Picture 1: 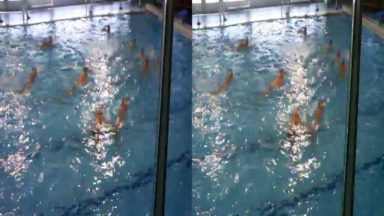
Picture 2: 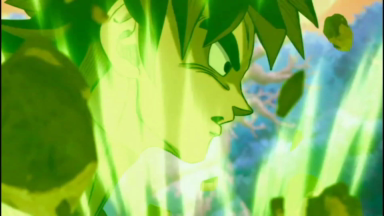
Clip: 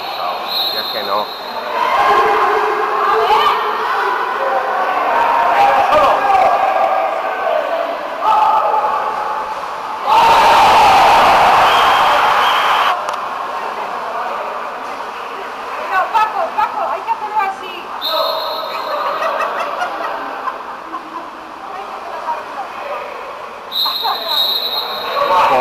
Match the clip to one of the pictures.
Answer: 1